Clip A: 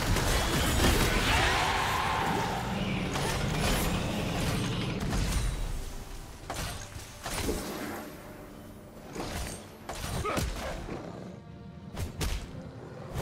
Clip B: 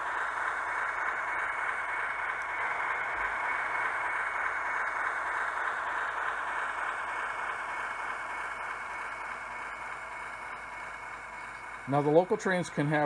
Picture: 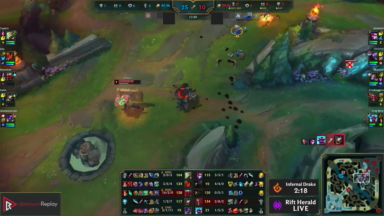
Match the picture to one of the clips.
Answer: A